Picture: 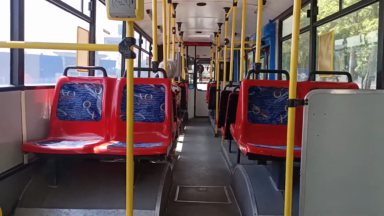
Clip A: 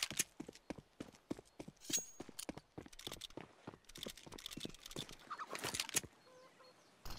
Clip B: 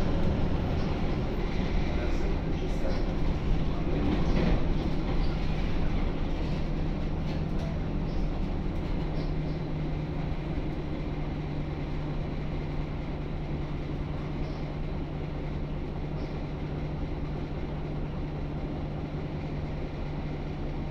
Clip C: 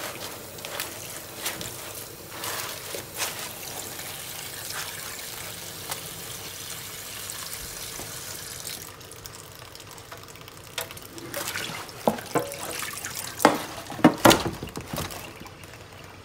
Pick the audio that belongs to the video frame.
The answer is B